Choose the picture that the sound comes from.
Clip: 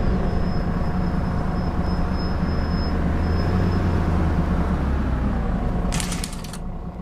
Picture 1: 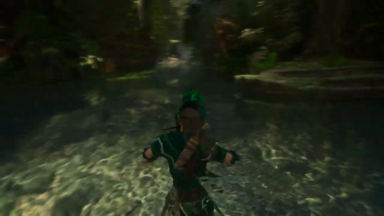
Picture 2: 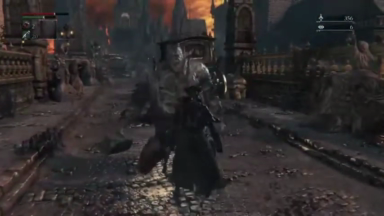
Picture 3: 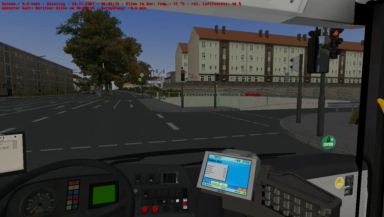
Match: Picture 3